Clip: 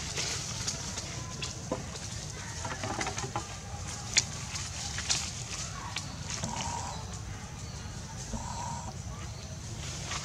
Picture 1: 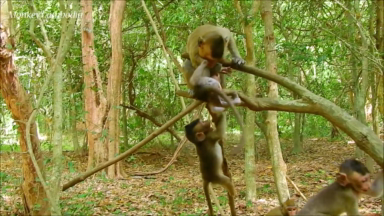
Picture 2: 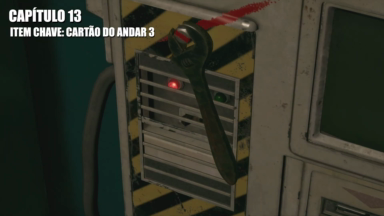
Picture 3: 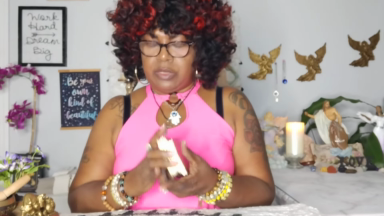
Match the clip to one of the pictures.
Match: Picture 1